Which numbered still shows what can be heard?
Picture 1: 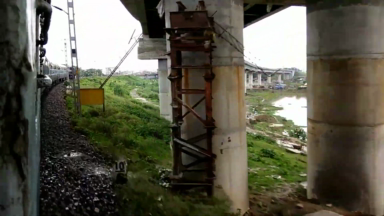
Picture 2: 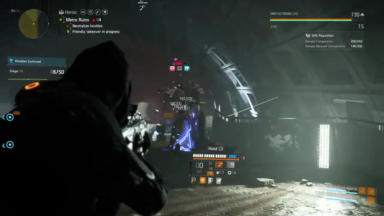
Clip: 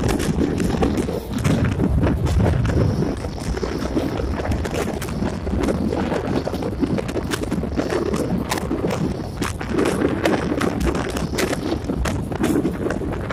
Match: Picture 1